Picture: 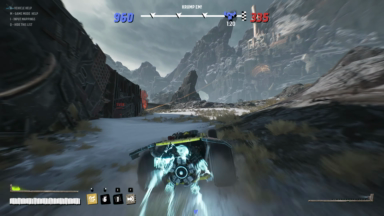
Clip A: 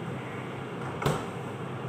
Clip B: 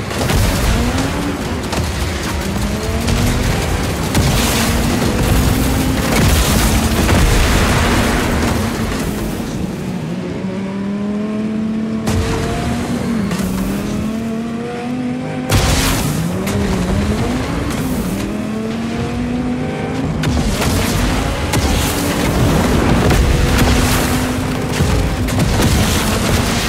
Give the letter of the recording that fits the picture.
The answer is B